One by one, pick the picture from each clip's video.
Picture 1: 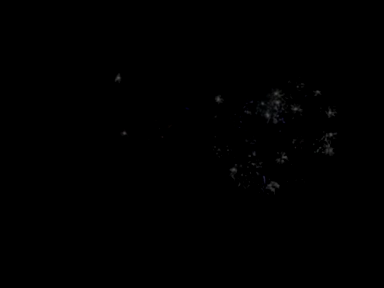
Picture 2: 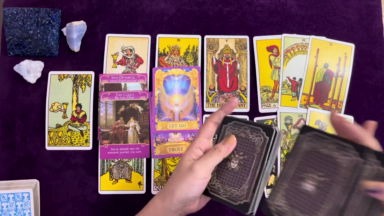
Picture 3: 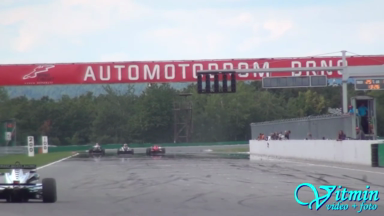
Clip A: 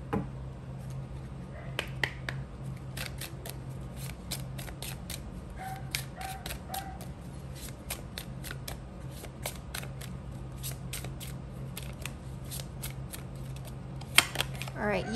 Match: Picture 2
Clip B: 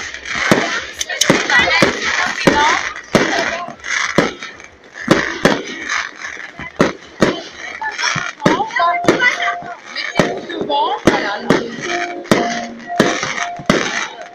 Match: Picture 1